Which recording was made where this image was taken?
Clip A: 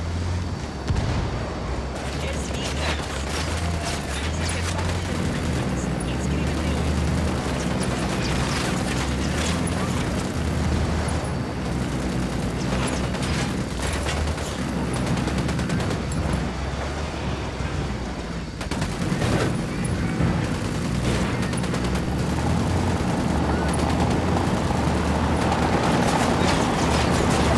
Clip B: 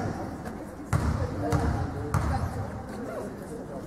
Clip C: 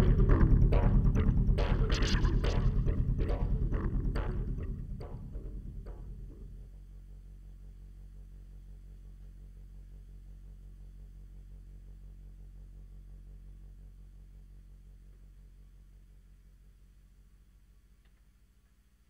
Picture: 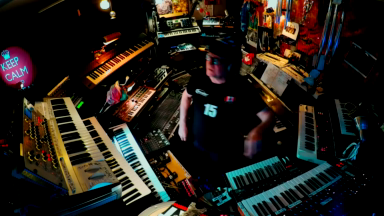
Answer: C